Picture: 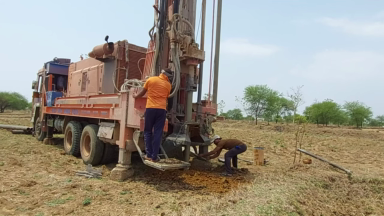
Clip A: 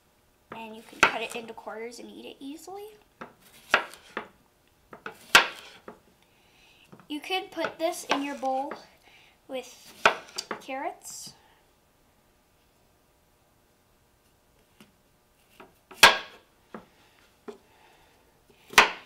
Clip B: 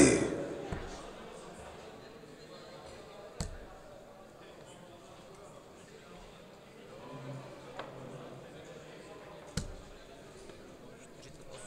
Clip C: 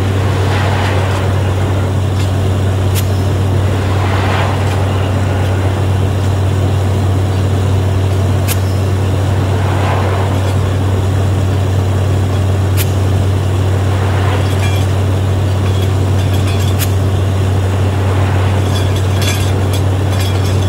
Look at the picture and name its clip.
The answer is C